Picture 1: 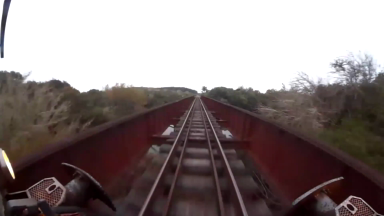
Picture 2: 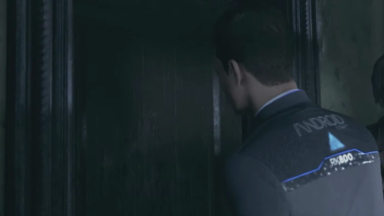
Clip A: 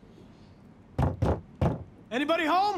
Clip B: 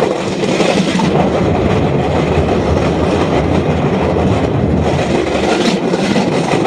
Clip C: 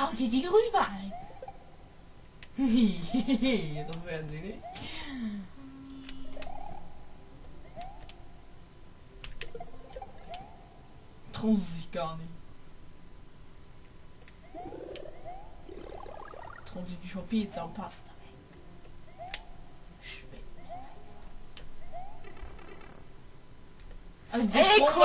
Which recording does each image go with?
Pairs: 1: B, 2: A